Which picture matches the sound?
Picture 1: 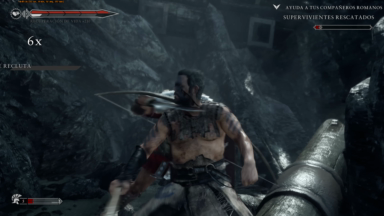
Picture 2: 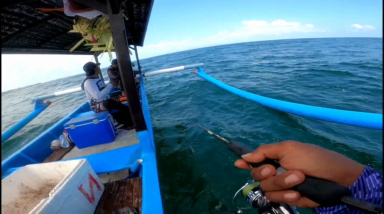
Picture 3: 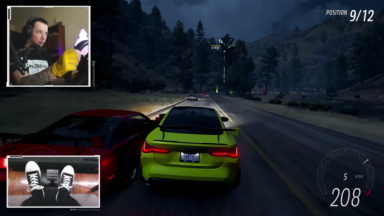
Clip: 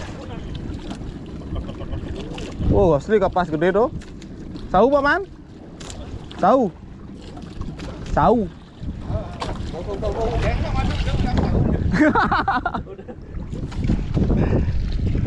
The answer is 2